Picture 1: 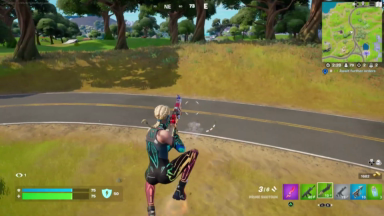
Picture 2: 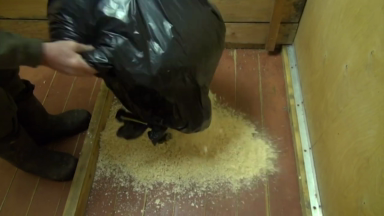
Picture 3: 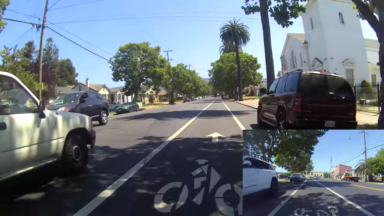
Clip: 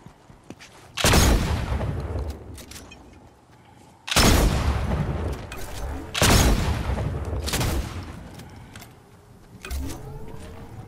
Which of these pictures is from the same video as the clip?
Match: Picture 1